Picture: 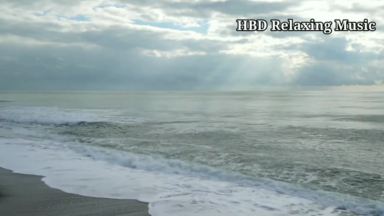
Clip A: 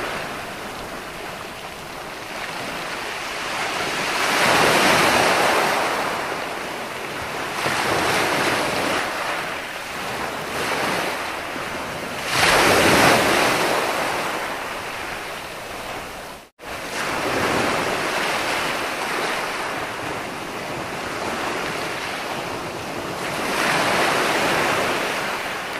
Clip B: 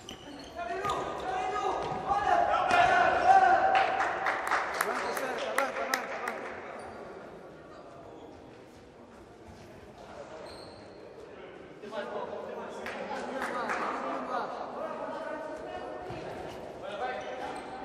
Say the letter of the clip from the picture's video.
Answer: A